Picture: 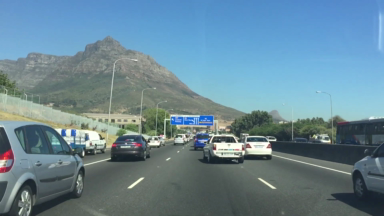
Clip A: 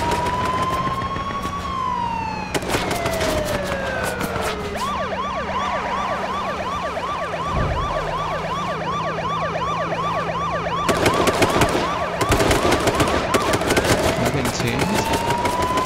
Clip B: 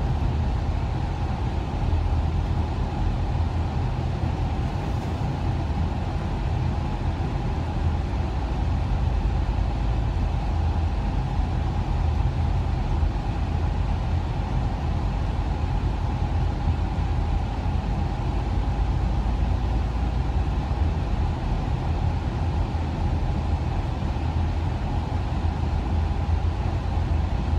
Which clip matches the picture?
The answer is B